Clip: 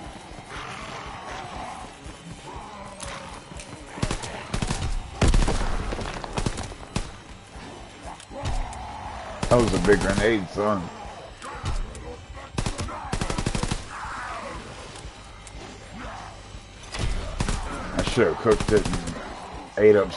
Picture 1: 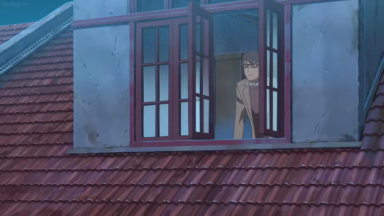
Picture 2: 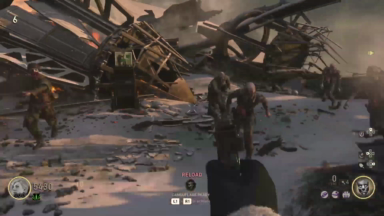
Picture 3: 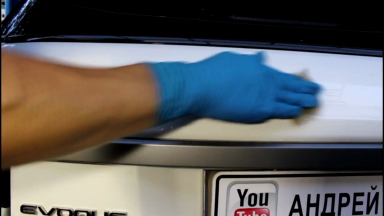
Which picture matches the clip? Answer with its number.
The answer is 2